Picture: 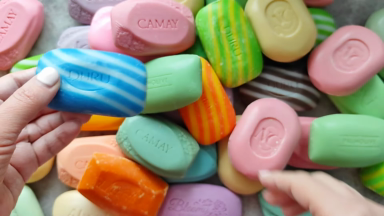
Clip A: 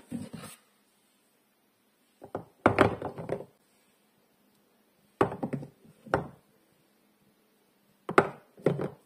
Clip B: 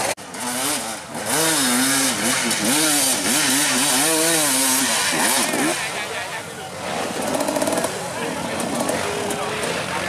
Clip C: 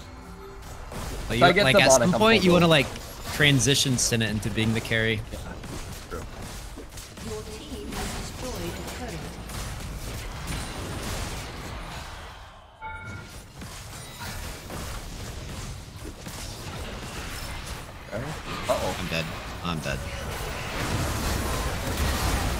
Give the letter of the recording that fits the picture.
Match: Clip A